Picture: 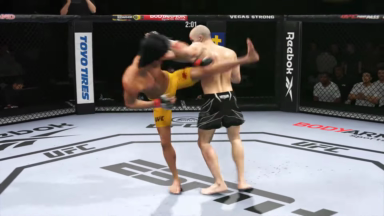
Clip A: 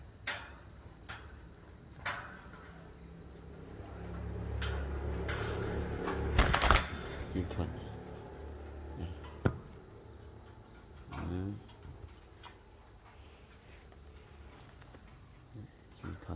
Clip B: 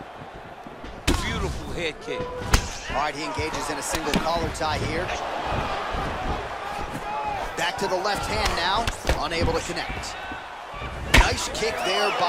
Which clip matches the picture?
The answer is B